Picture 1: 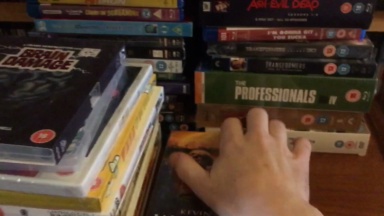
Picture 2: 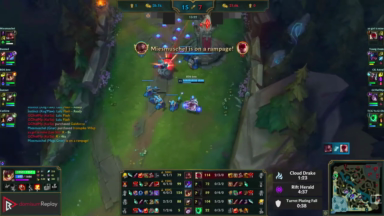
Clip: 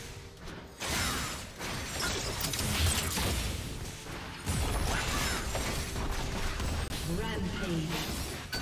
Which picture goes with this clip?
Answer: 2